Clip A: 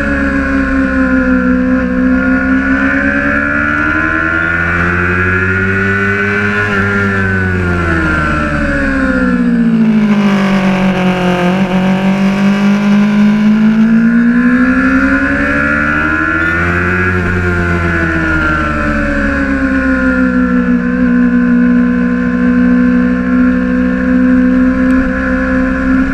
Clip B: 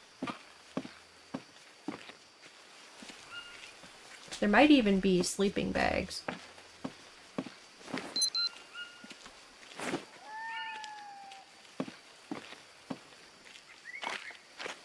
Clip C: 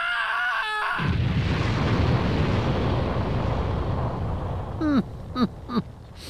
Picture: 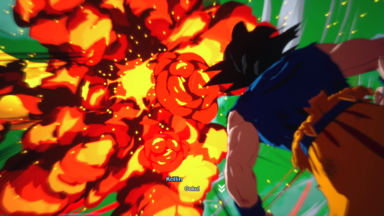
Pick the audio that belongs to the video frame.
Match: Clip C